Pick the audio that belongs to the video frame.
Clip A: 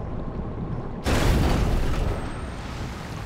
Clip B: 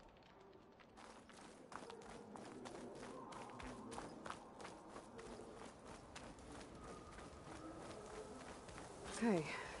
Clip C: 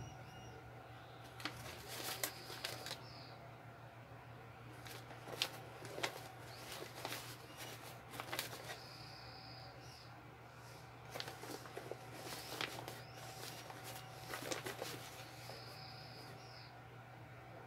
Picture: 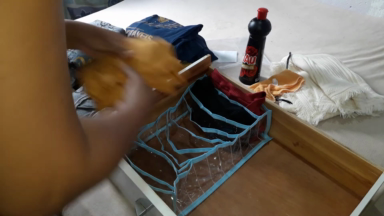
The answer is C